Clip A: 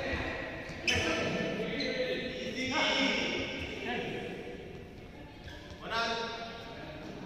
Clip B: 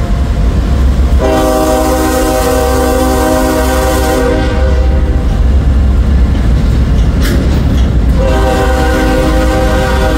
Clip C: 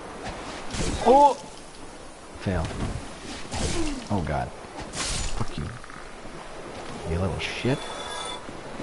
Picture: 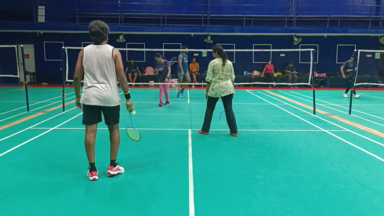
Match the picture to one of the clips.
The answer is A